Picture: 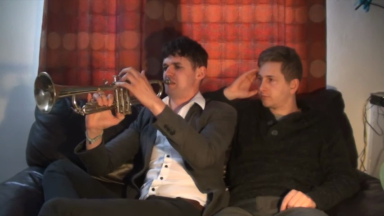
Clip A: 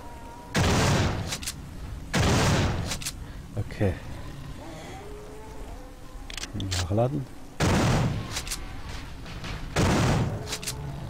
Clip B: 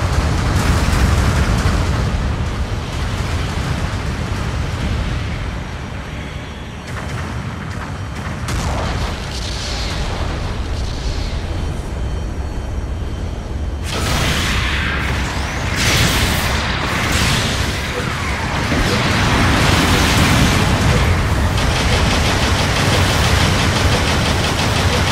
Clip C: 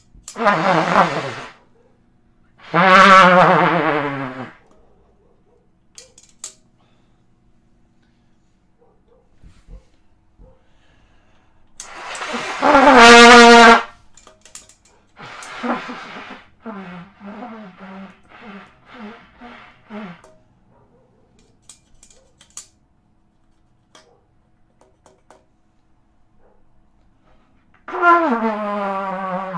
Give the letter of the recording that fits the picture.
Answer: C